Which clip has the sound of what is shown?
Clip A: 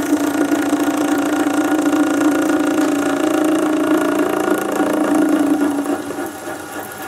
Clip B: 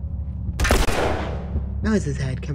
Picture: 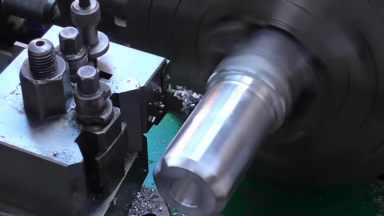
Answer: A